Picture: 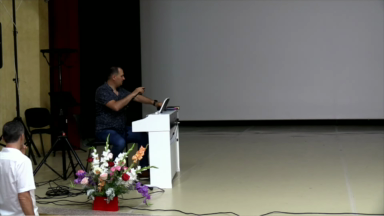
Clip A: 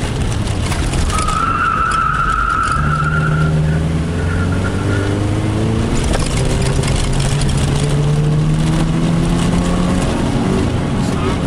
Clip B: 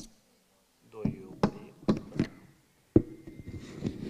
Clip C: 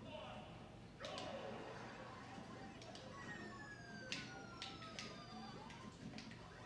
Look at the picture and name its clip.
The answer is B